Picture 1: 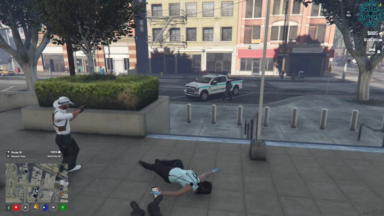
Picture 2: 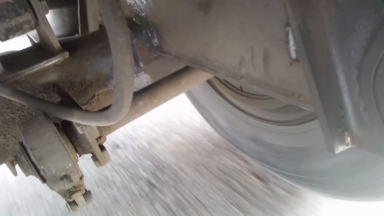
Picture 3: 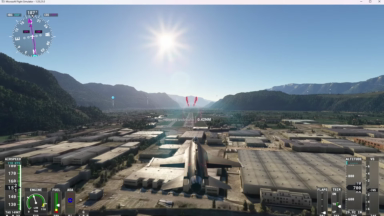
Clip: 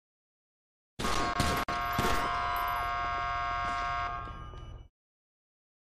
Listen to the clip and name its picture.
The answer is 1